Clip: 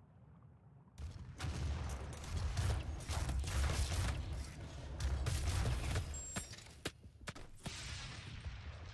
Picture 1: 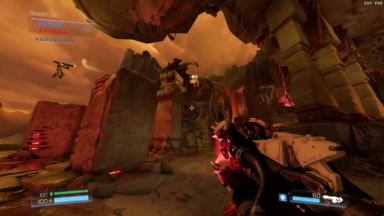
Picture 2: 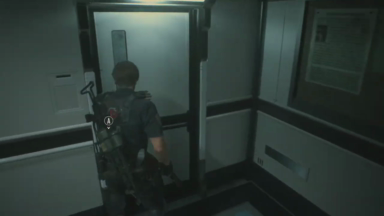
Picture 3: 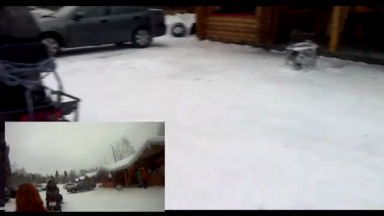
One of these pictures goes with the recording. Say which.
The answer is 1